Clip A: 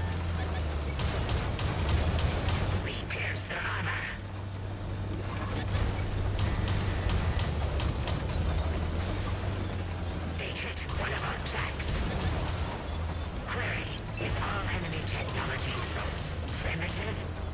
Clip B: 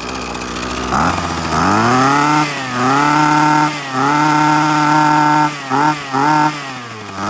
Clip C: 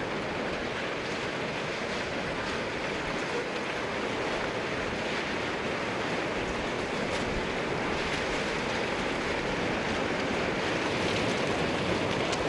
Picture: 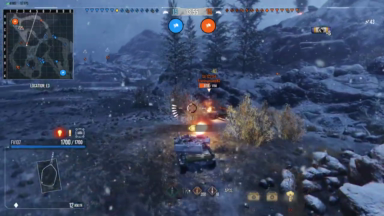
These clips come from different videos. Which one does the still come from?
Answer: A